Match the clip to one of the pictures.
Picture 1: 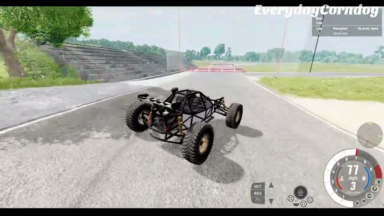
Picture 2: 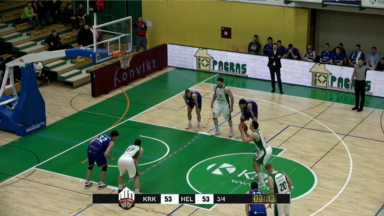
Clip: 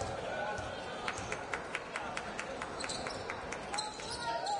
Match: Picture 2